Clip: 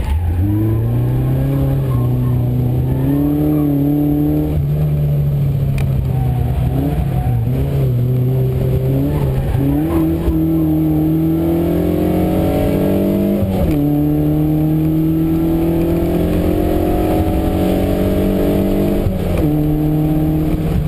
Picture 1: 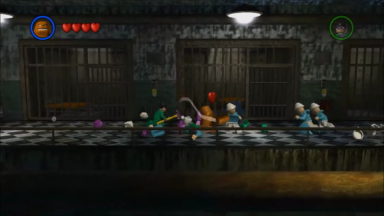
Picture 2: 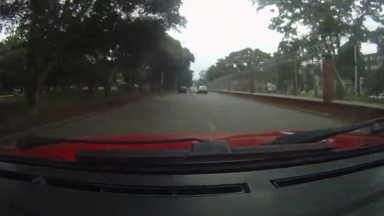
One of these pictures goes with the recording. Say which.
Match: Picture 2